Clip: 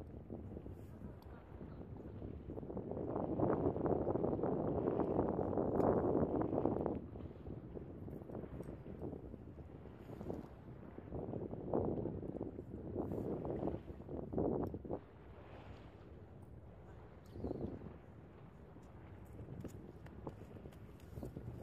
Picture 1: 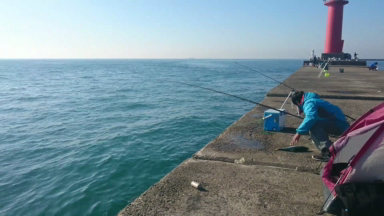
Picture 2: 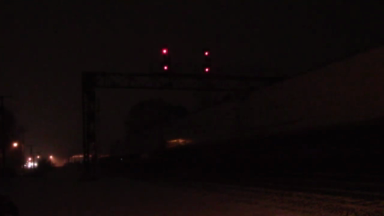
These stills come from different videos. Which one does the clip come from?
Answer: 1